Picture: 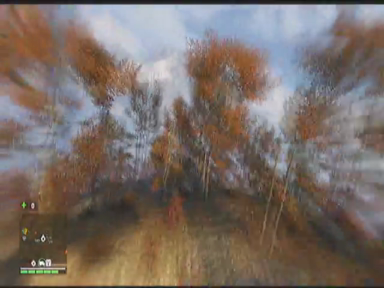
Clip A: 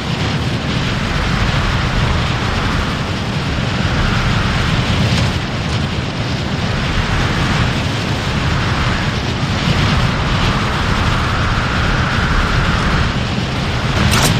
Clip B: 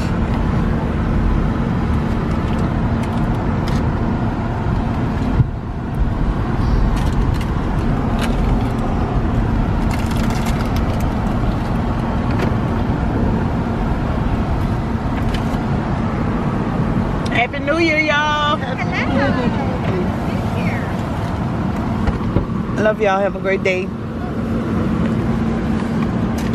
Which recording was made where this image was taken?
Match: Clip A